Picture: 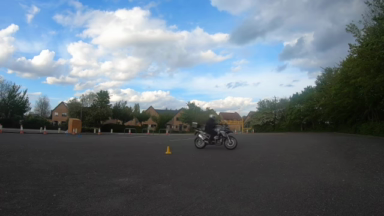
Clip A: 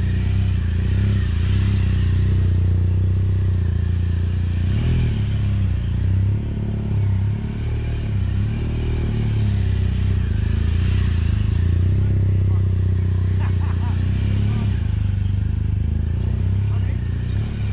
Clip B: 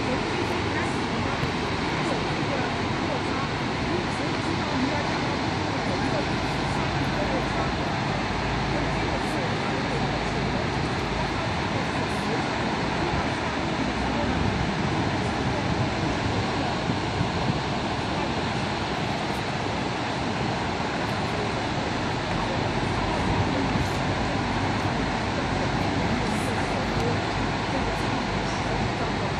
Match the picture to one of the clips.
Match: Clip A